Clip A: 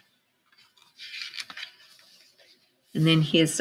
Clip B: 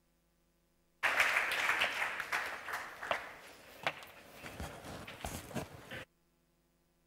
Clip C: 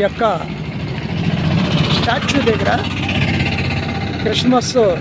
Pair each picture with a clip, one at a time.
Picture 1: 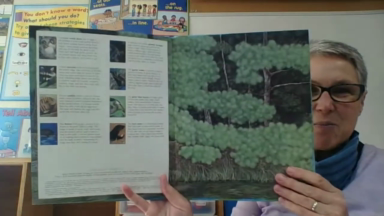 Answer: A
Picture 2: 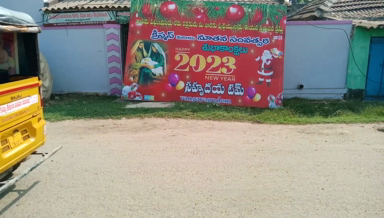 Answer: C